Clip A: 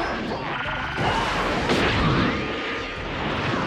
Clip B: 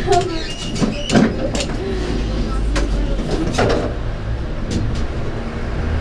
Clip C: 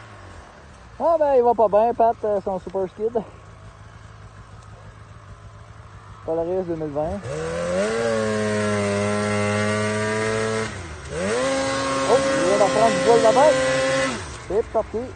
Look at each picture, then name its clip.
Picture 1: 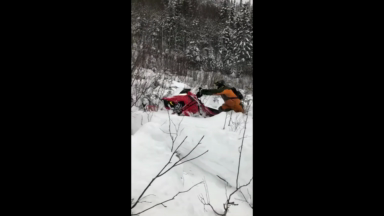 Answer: C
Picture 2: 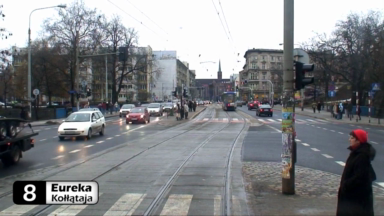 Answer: B